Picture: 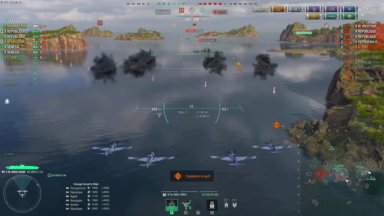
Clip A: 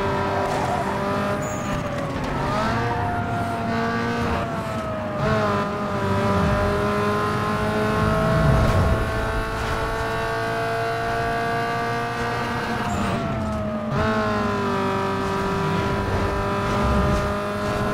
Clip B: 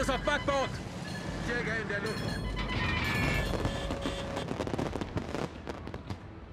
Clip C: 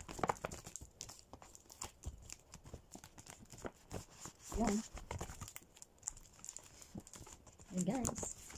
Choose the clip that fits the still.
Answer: B